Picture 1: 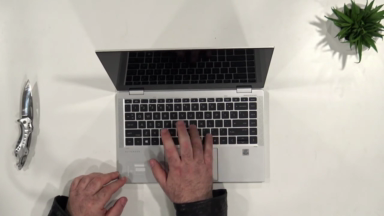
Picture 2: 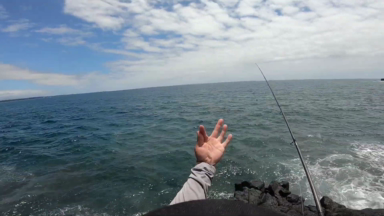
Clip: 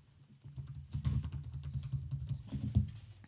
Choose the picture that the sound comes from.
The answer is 1